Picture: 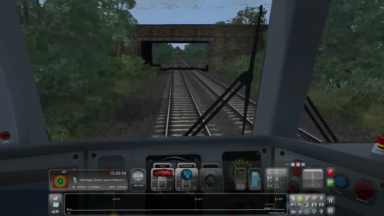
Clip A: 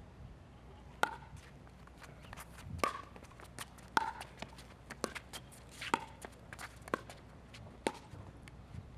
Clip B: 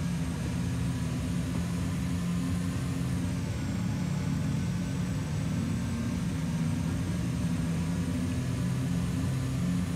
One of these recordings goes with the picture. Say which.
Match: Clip B